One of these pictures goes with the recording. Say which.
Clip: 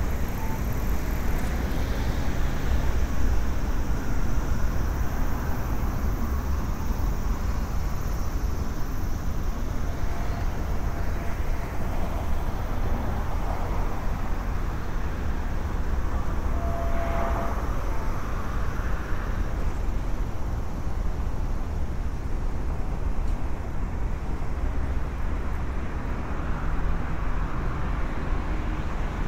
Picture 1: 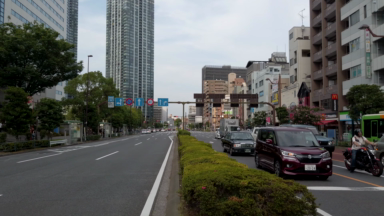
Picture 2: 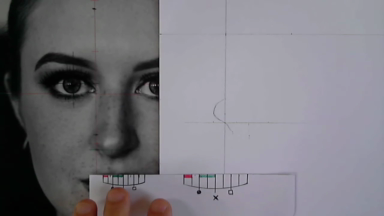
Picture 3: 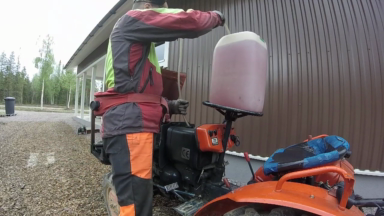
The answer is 1